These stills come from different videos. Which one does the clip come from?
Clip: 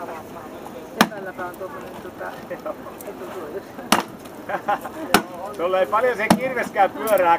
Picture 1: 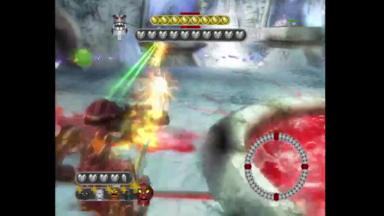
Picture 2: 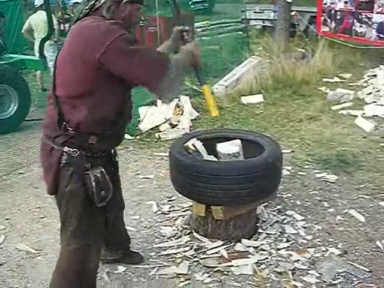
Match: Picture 2